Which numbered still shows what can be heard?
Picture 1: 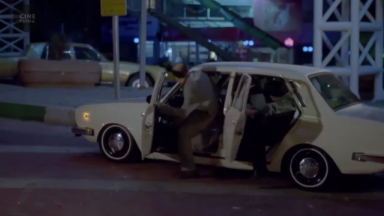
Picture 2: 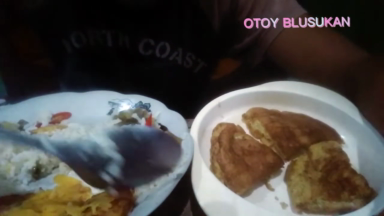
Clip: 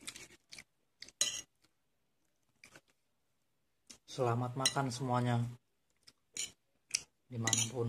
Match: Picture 2